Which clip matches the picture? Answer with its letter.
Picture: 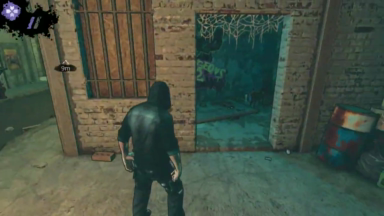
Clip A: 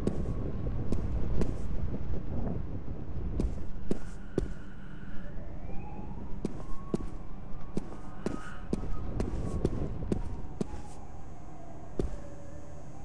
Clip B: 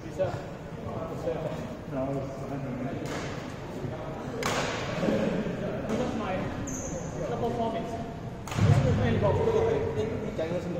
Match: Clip A